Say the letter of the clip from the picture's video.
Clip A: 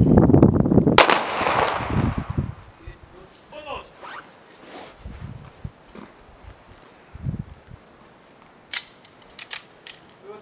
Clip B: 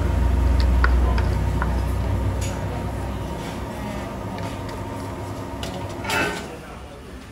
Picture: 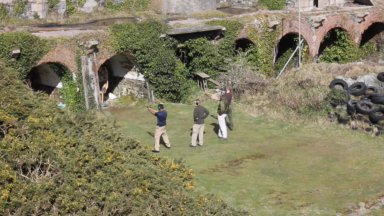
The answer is A